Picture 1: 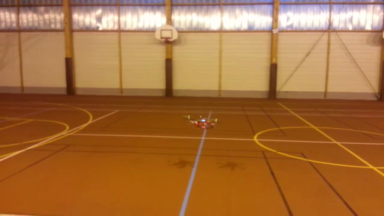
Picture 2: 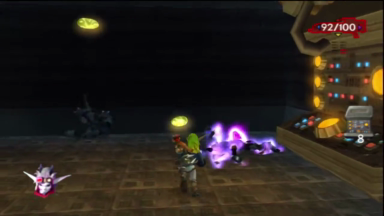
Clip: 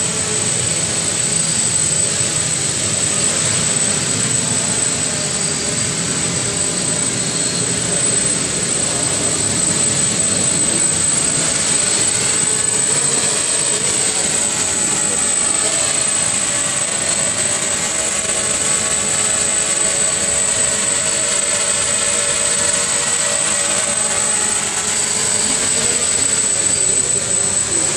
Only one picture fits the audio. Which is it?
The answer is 1